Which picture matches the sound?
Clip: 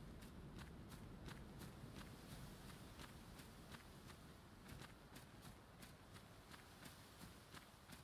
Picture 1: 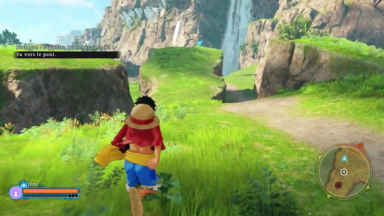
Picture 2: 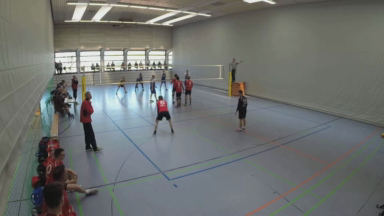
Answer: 1